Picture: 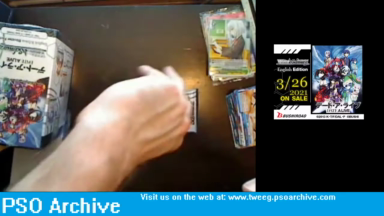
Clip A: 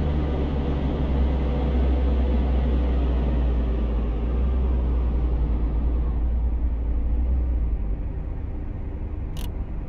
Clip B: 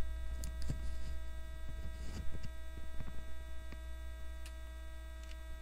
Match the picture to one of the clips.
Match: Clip B